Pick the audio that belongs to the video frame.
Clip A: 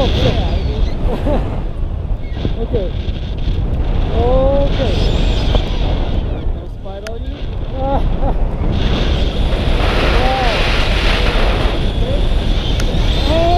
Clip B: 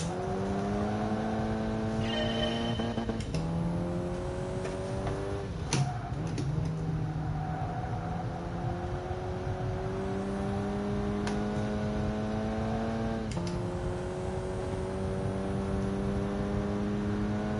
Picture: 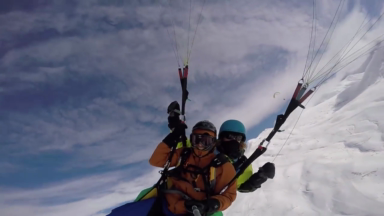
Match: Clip A